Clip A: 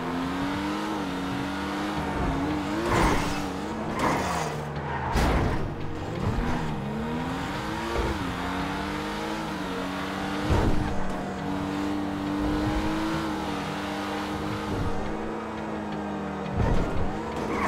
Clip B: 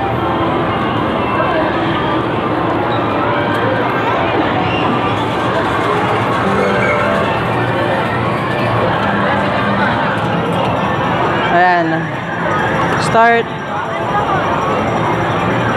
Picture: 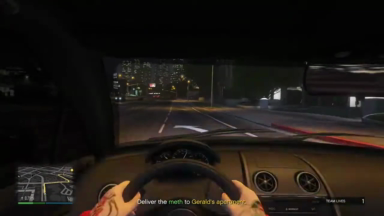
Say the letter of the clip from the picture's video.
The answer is A